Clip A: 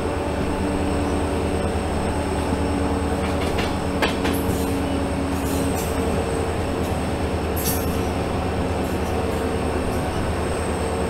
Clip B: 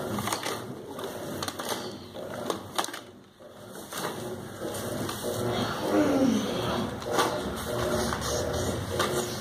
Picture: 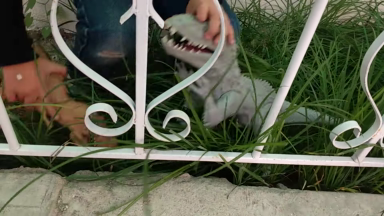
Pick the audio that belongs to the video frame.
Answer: B